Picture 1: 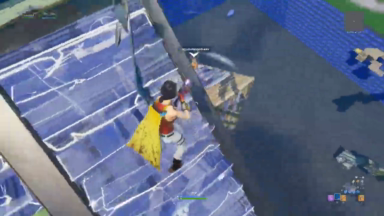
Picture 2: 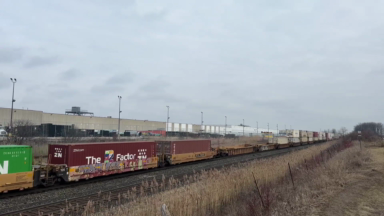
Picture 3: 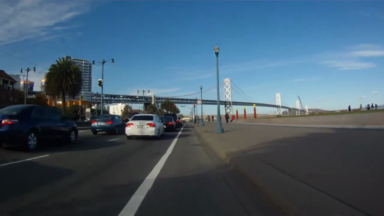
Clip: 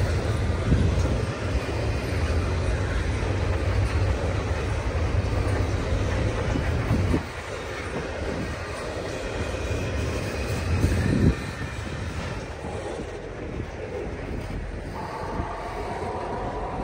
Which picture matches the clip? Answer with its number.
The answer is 2